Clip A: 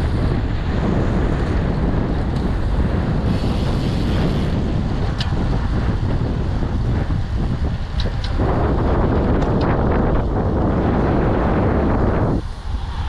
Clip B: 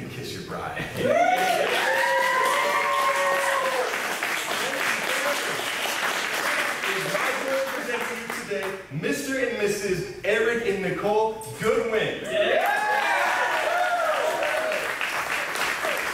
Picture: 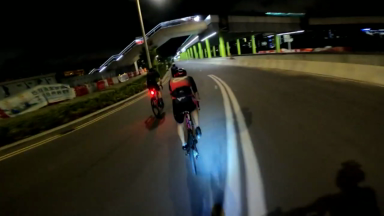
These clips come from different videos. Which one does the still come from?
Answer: A